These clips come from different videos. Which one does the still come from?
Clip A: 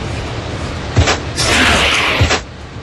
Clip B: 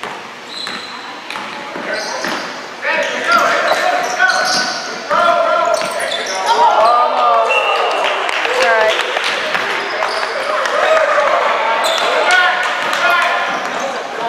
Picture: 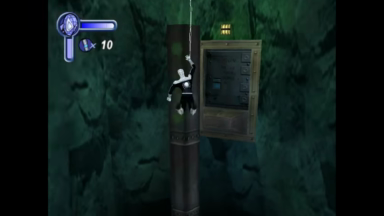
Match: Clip A